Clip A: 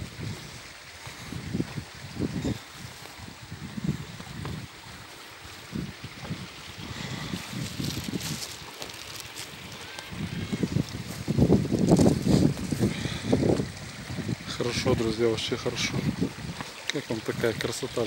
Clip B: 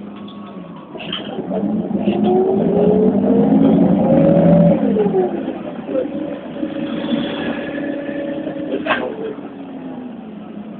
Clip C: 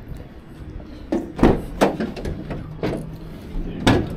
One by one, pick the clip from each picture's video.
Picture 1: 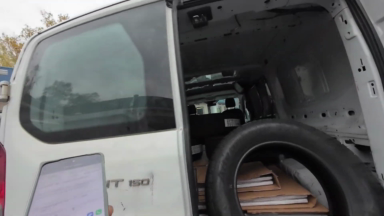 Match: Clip C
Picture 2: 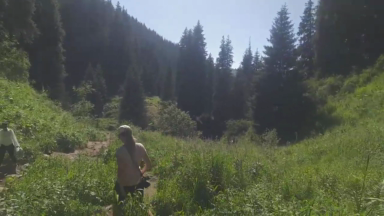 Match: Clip A